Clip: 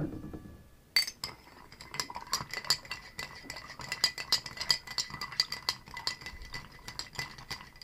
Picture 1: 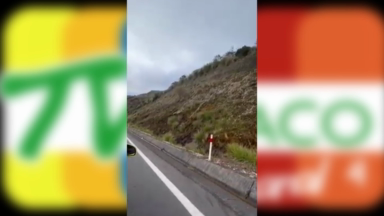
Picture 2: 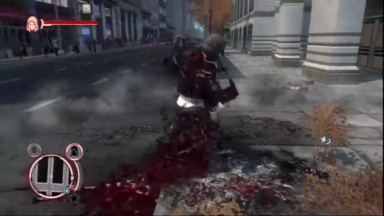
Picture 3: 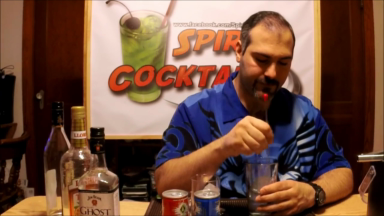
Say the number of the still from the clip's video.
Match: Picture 3